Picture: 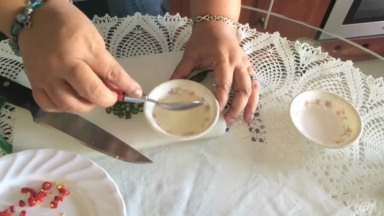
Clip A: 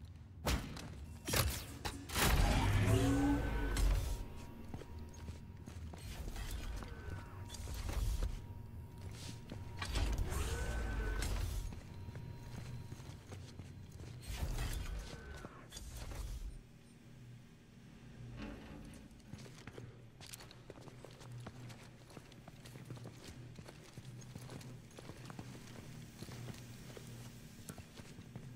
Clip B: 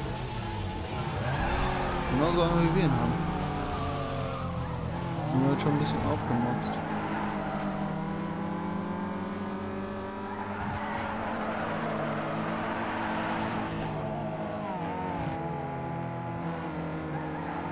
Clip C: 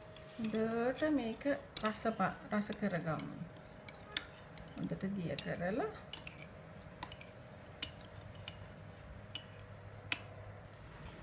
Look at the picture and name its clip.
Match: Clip C